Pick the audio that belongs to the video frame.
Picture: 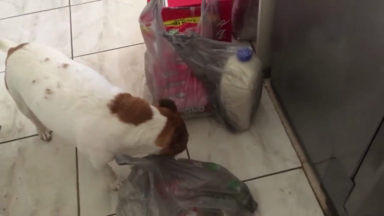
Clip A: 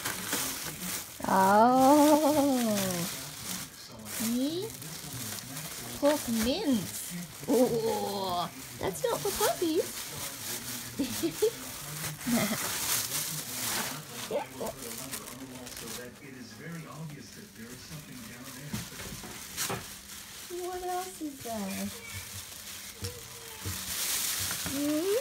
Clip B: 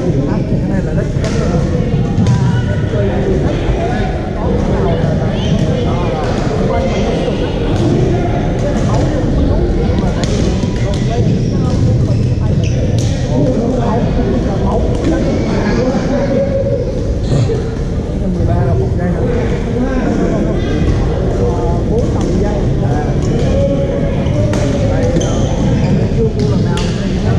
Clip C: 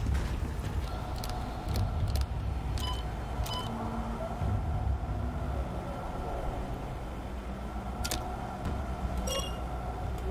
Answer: A